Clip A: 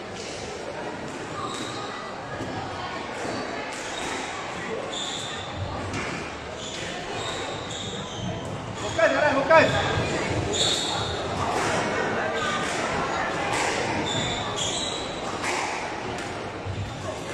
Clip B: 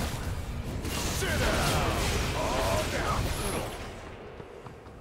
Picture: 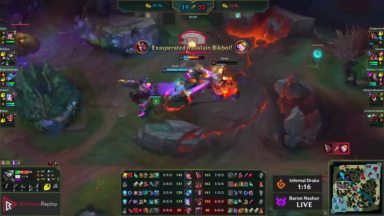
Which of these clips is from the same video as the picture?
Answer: B